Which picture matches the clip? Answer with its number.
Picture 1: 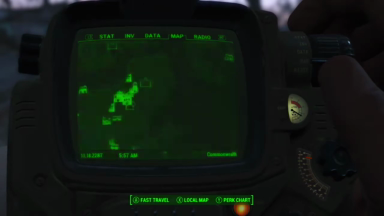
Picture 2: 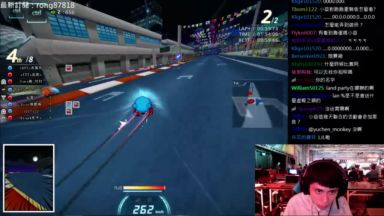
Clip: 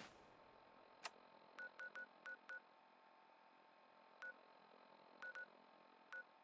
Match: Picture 1